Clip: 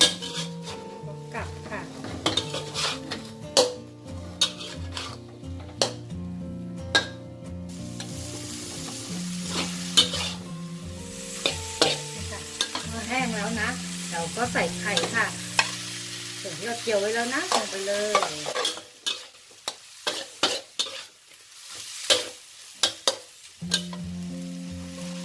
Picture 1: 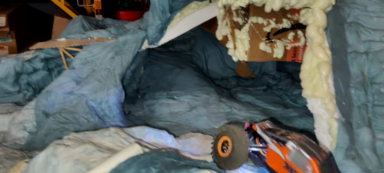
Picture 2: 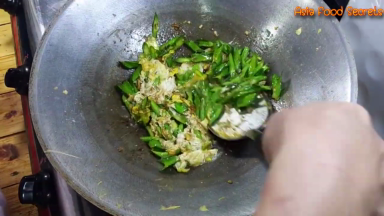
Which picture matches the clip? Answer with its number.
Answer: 2